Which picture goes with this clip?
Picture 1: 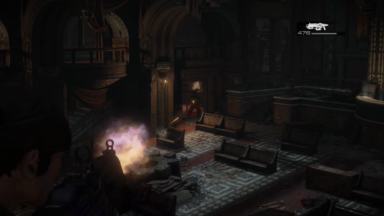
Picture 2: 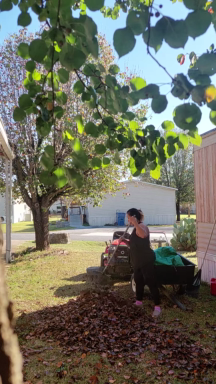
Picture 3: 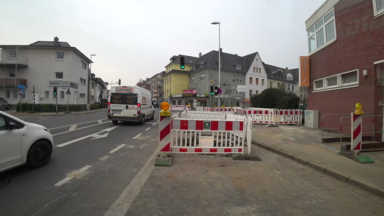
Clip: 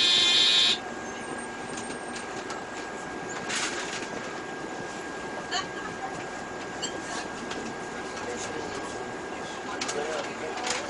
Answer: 3